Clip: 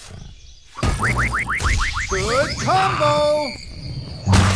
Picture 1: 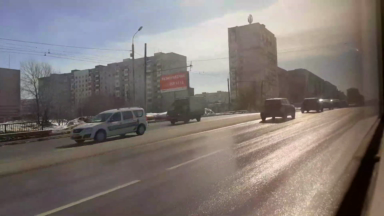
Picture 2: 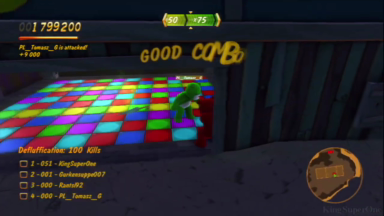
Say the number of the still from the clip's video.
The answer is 2